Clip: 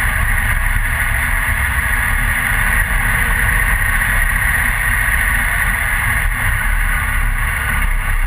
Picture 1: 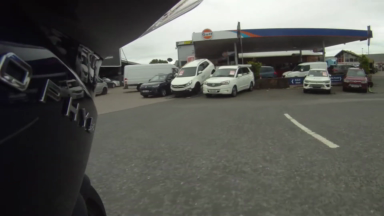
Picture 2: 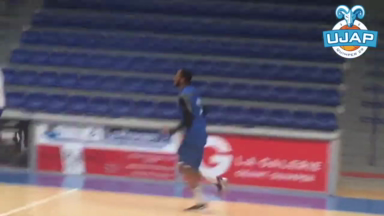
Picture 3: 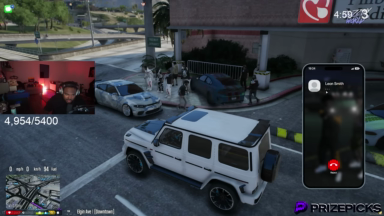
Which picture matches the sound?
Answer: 1